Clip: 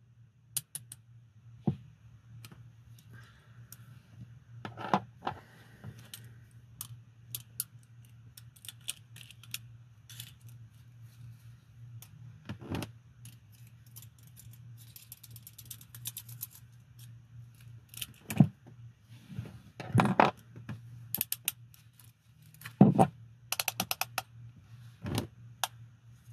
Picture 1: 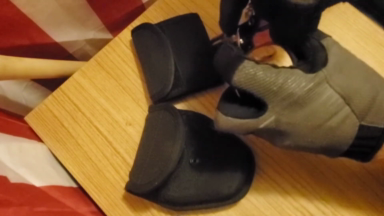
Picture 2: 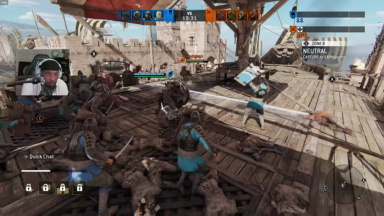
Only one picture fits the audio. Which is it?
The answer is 1